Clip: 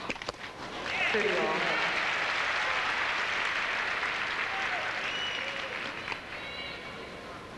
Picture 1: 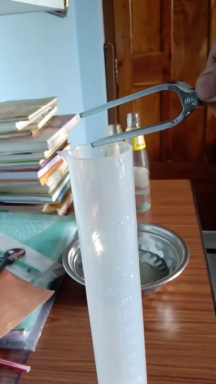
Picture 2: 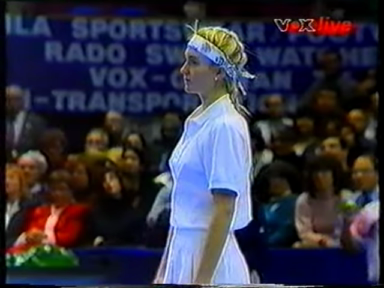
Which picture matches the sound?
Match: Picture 2